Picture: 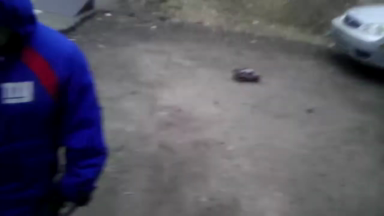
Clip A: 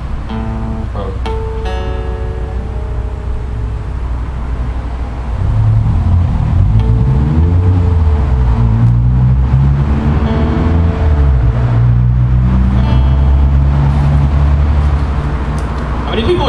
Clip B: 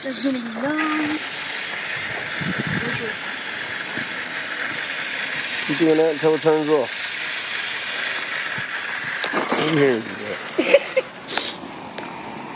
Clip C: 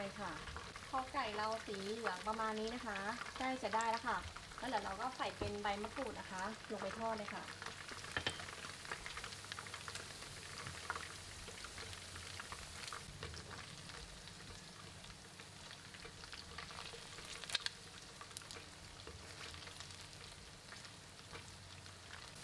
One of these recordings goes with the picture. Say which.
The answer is B